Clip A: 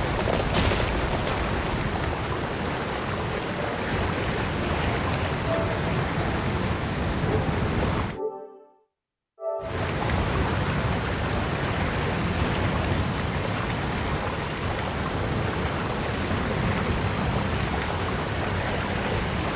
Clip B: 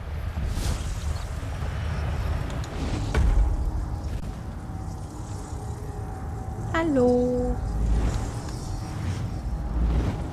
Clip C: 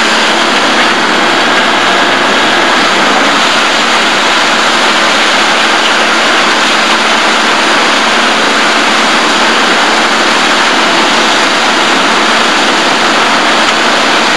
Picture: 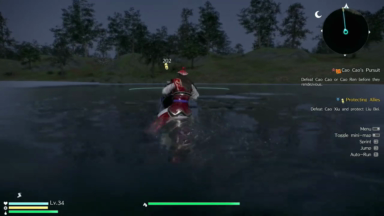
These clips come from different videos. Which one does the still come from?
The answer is A